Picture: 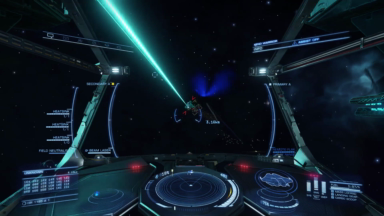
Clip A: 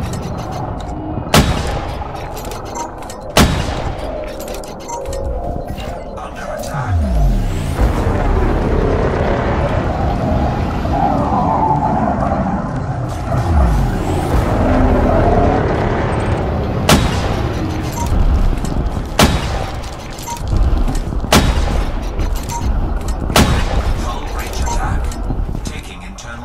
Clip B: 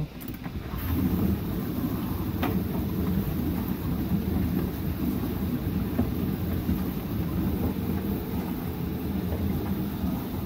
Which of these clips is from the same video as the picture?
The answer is A